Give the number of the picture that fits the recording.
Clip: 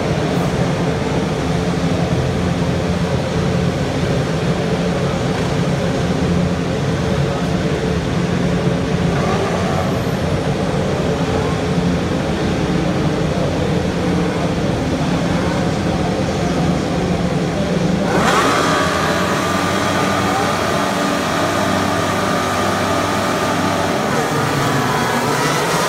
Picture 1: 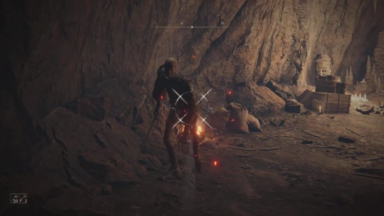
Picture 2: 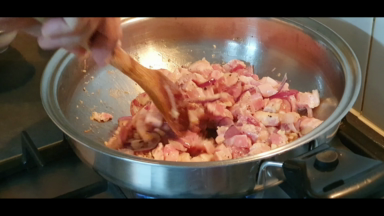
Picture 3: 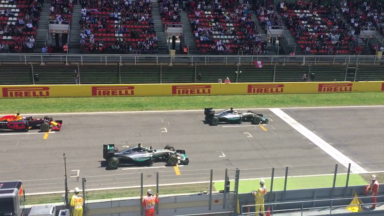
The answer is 3